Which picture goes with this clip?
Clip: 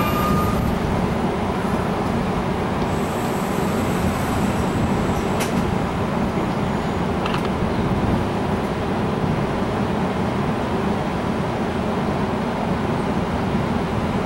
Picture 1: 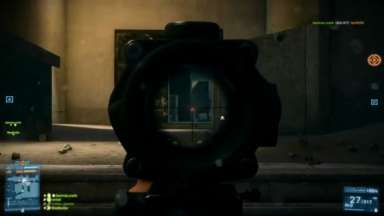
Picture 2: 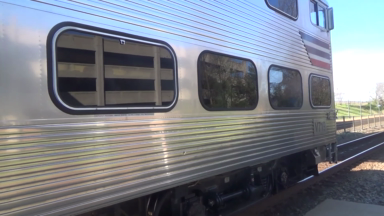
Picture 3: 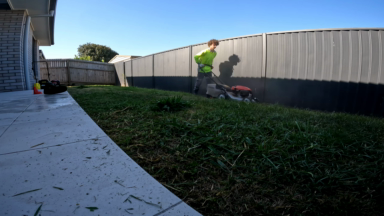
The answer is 2